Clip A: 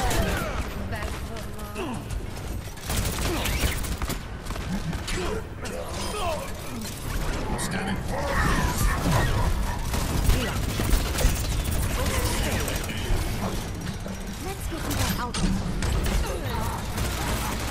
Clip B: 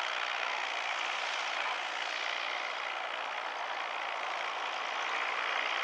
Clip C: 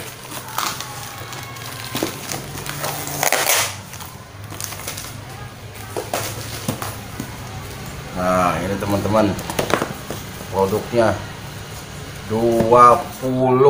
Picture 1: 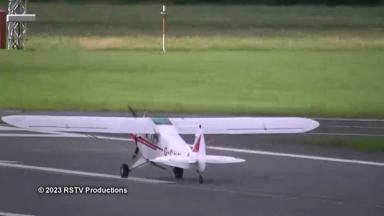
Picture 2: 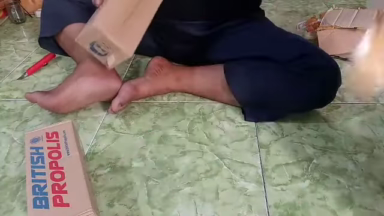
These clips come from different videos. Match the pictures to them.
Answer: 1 B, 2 C